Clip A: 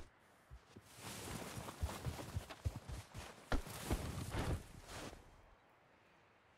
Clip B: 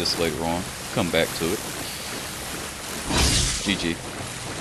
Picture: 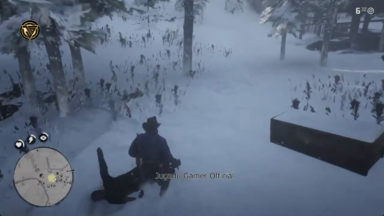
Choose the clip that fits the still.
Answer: A